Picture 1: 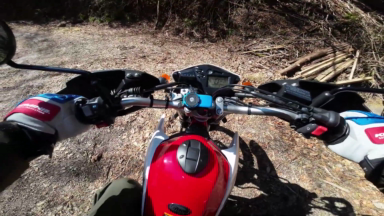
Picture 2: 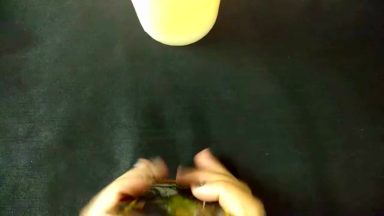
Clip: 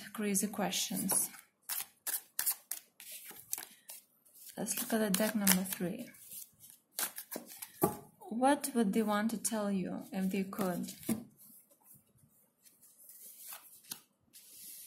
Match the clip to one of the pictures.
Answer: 2